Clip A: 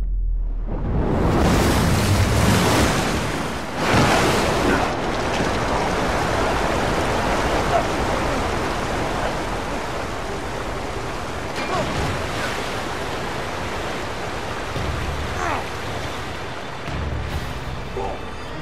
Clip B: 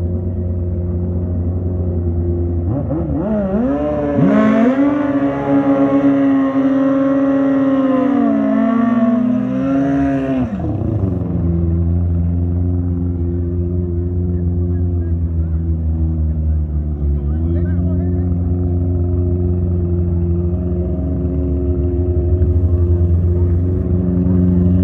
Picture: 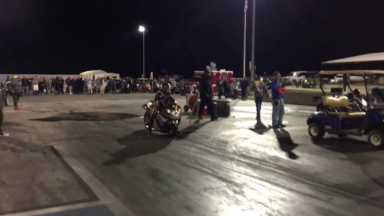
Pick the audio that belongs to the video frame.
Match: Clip B